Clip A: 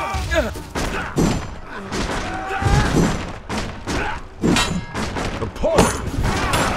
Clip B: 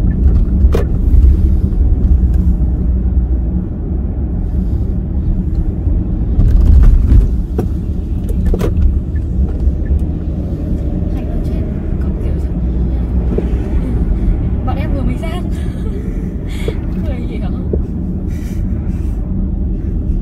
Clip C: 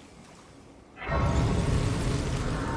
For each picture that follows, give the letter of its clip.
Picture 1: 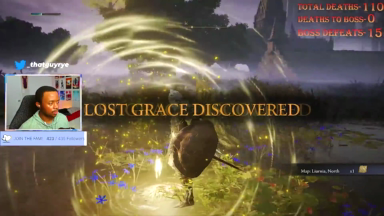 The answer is C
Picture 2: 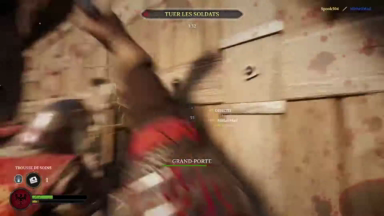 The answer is A